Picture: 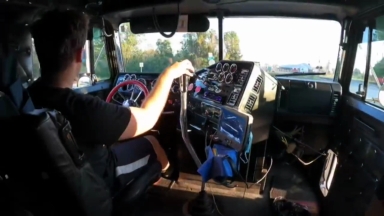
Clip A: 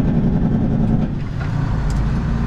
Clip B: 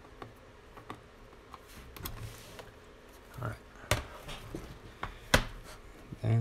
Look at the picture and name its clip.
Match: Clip A